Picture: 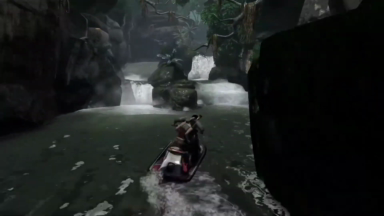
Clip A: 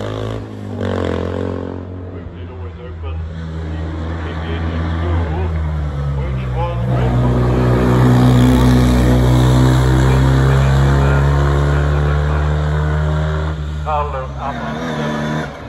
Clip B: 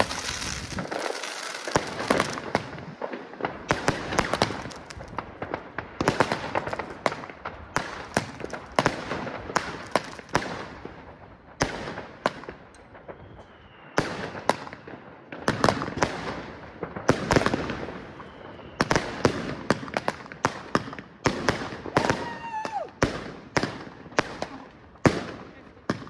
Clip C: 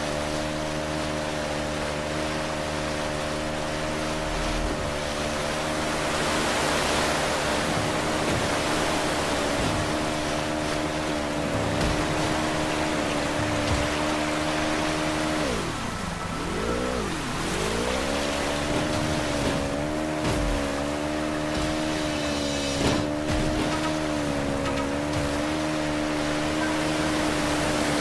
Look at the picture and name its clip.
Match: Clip C